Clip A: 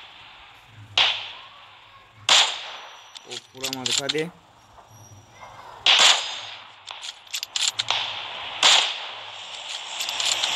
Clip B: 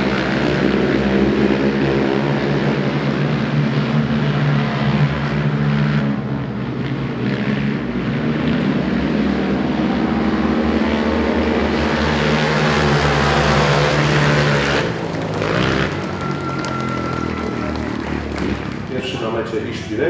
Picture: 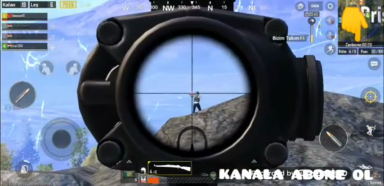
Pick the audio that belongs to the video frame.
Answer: A